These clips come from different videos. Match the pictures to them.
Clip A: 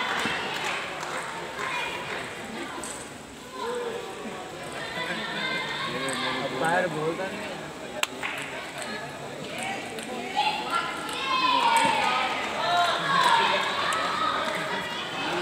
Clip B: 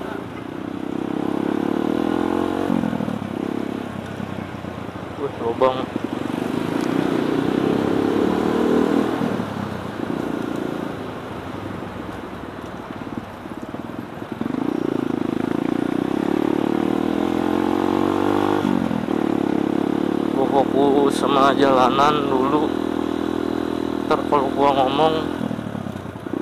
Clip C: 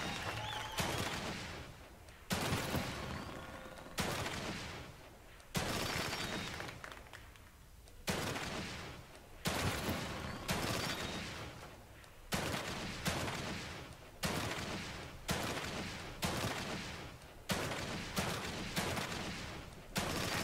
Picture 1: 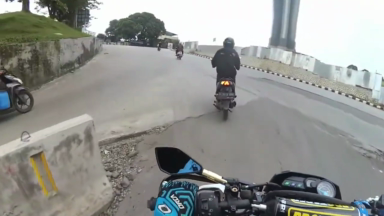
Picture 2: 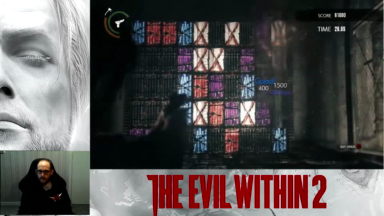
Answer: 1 B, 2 C